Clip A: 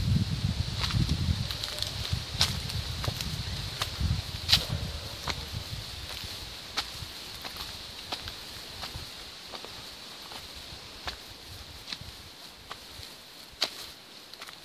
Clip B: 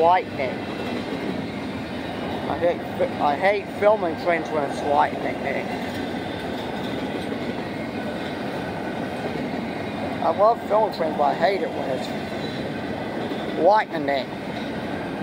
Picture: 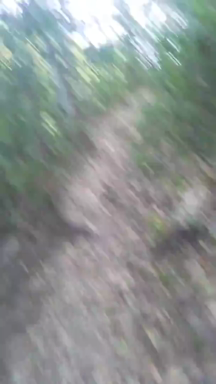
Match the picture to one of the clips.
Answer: A